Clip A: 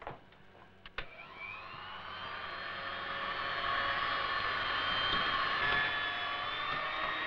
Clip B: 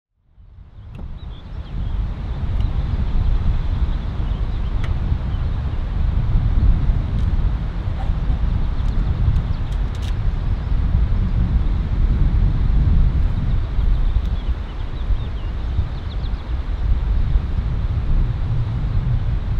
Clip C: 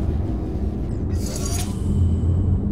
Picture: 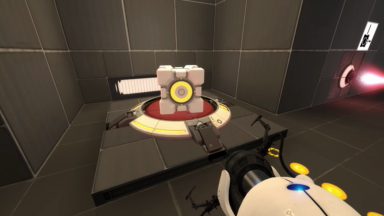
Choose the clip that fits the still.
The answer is C